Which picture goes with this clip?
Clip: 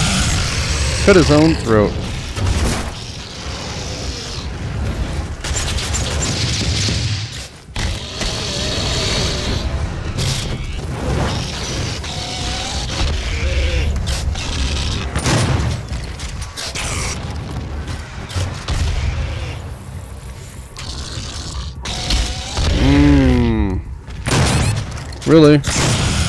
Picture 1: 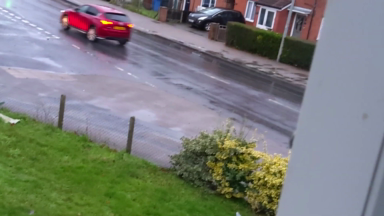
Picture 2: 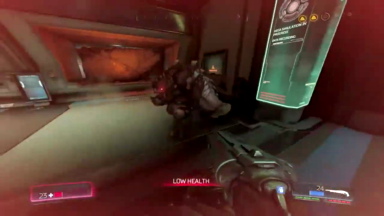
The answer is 2